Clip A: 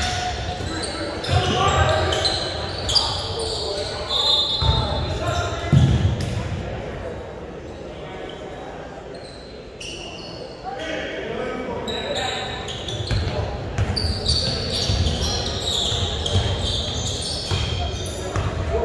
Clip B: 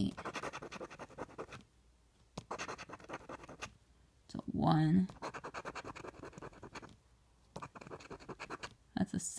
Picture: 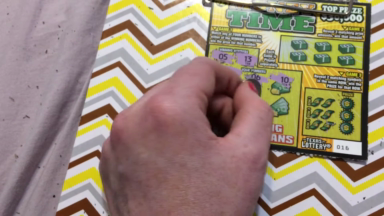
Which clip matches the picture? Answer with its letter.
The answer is B